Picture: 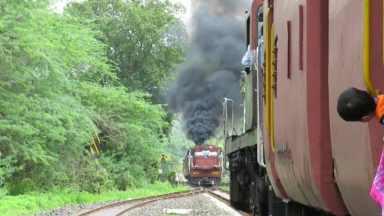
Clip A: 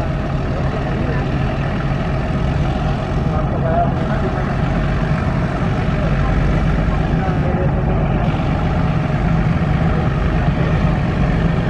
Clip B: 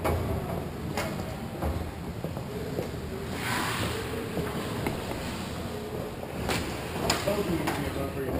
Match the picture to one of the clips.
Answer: A